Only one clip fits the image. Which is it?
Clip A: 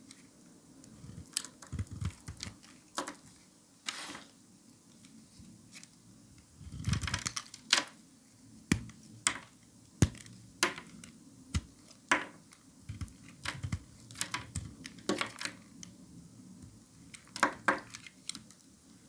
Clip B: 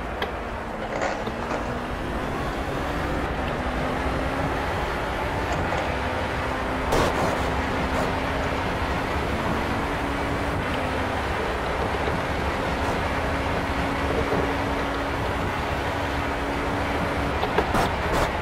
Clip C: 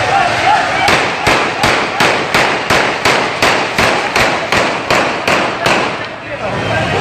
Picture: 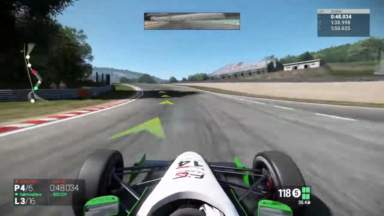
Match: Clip B